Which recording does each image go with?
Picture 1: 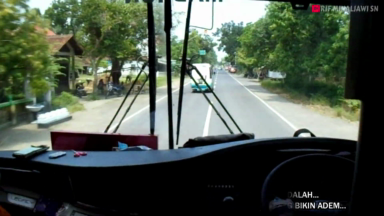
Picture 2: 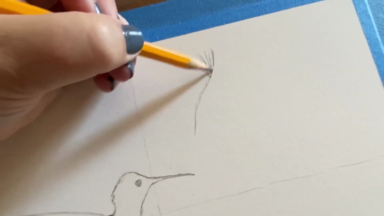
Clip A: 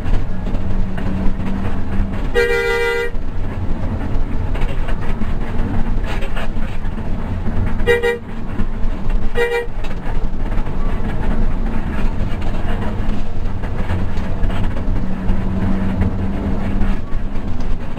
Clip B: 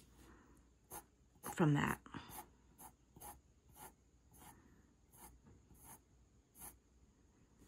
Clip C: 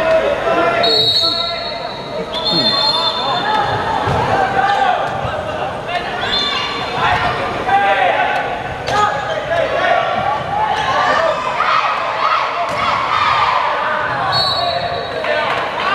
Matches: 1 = A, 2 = B